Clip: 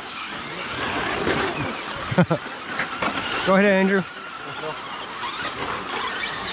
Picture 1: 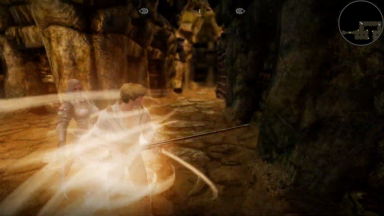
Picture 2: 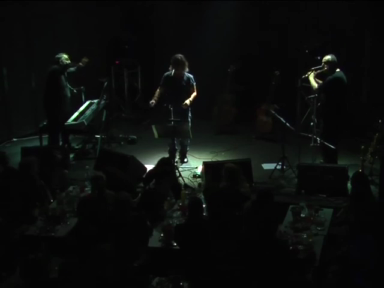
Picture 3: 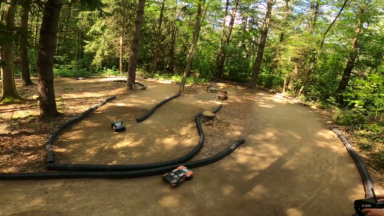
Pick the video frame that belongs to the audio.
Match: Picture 3